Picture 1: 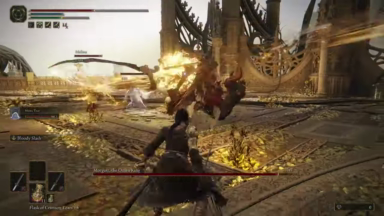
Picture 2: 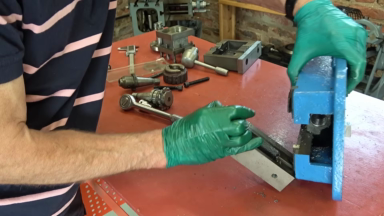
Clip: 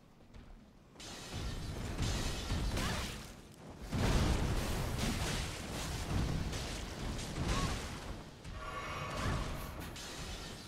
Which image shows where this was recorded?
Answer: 1